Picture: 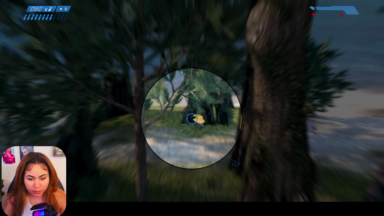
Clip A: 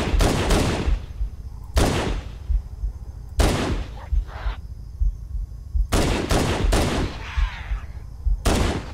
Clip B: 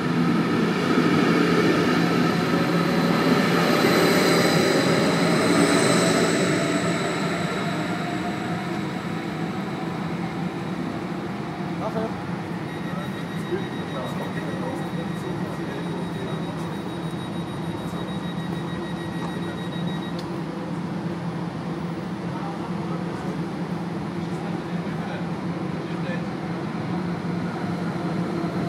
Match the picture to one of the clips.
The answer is A